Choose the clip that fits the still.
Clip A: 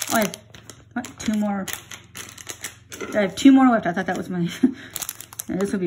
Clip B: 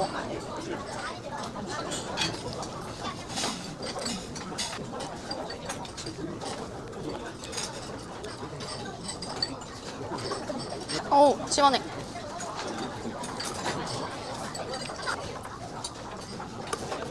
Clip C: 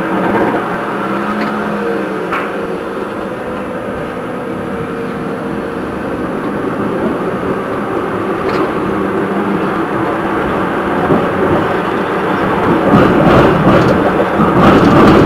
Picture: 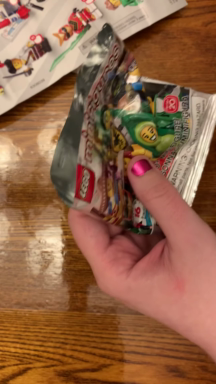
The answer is A